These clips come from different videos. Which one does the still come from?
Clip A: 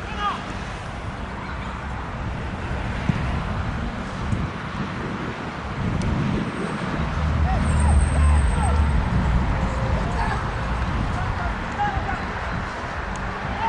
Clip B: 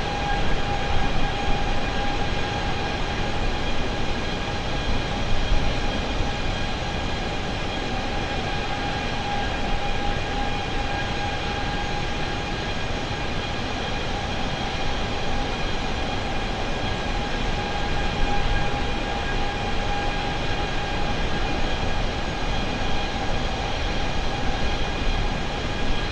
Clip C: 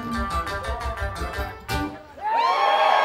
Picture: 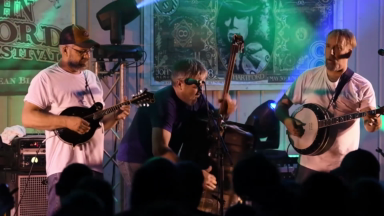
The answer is C